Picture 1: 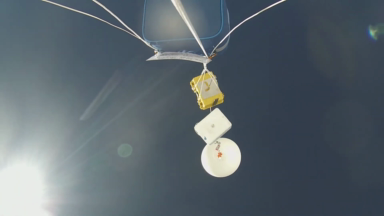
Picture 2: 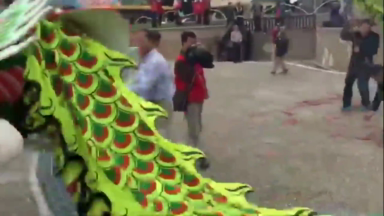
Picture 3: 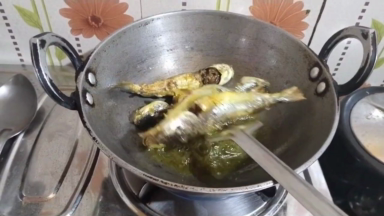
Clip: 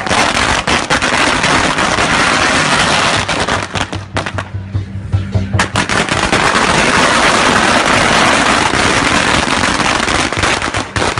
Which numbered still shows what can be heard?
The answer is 2